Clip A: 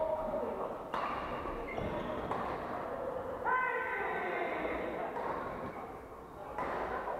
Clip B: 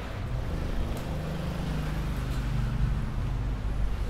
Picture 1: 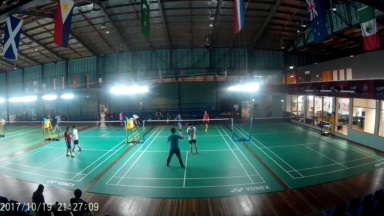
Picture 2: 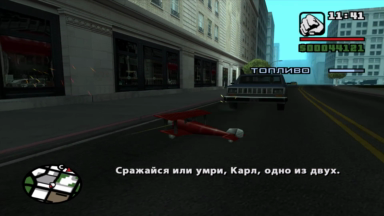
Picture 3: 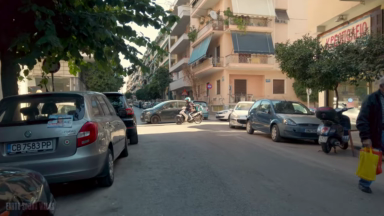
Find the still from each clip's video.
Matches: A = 1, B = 3